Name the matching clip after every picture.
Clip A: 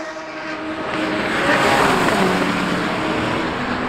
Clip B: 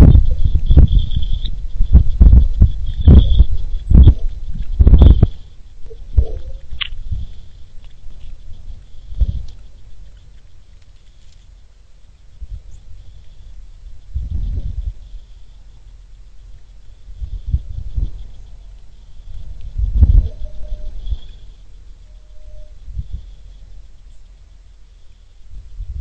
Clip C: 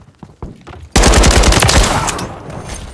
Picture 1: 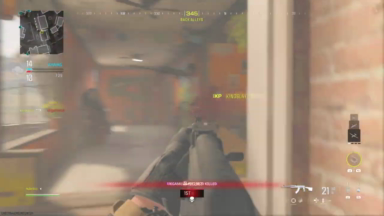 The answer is C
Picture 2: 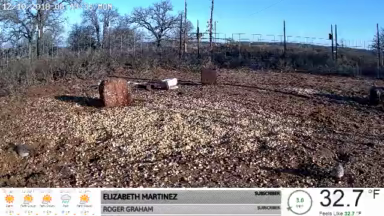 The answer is B